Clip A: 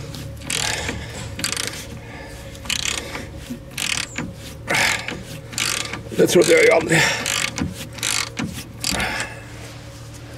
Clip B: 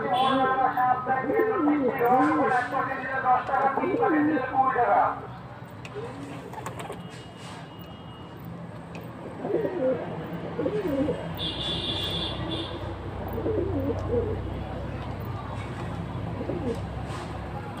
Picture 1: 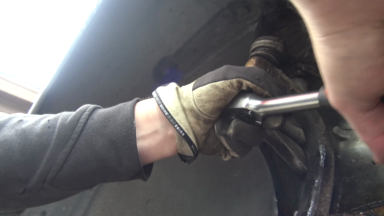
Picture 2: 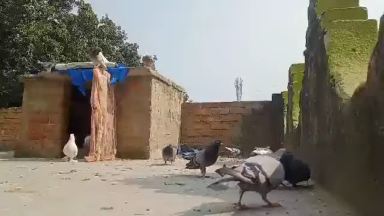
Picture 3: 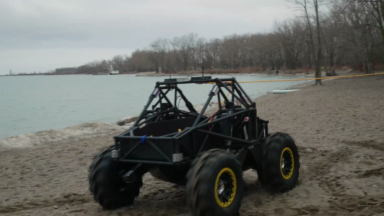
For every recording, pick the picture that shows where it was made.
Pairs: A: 1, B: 2